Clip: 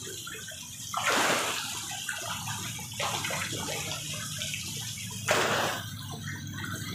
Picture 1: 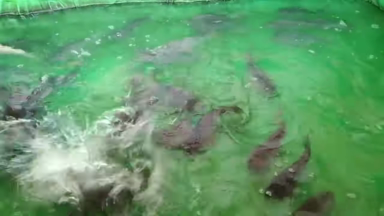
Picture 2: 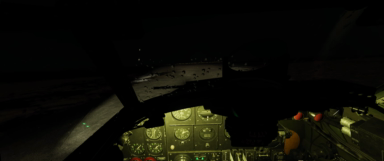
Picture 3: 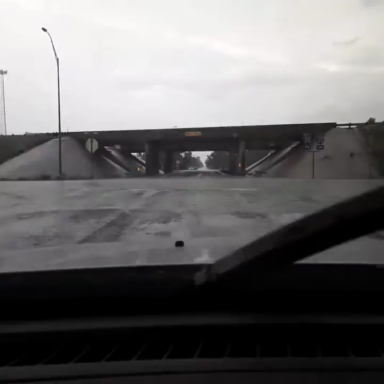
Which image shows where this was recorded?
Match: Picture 1